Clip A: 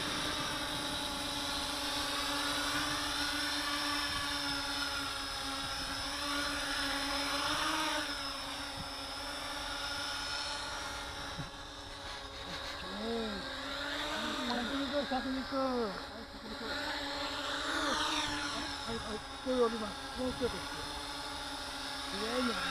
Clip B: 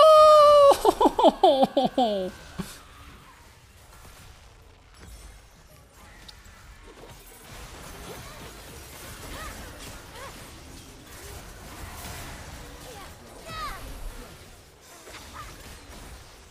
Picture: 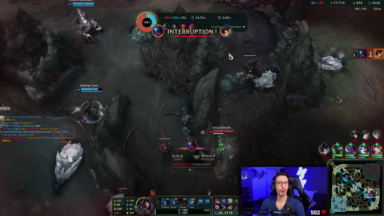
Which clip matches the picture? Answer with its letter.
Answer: B